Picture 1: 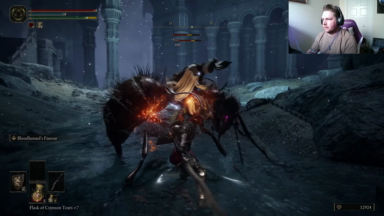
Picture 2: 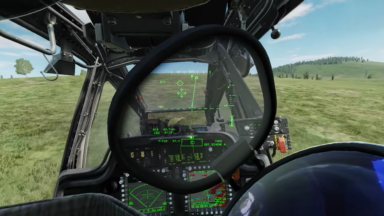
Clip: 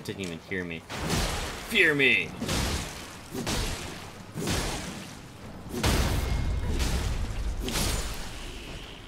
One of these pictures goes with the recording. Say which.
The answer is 1